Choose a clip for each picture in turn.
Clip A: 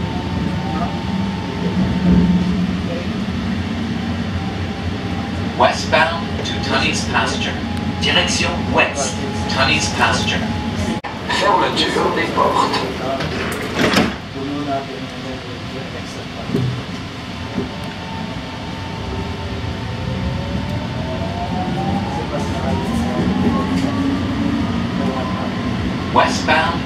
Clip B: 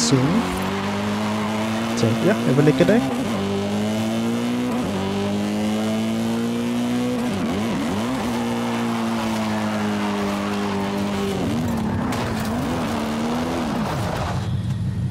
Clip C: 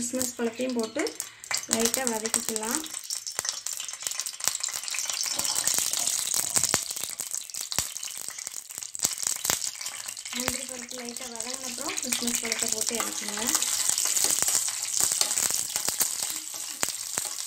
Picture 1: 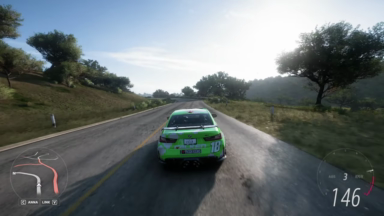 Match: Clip B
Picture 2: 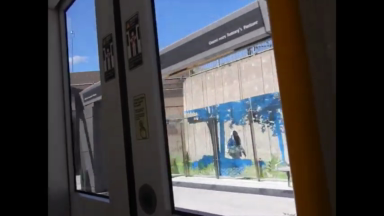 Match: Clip A